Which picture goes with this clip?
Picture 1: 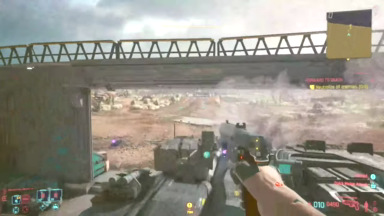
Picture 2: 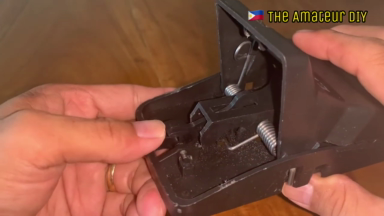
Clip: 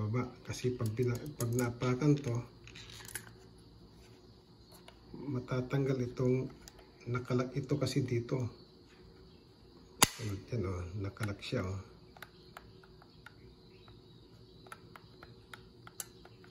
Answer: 2